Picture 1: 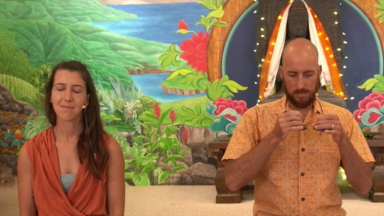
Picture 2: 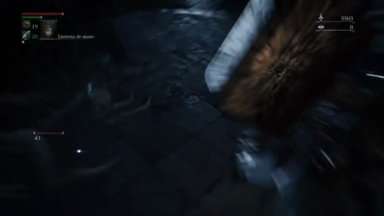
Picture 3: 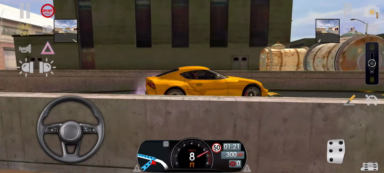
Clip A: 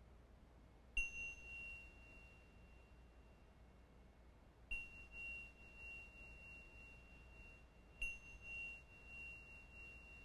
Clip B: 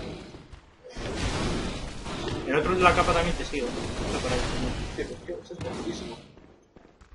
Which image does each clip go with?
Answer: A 1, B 2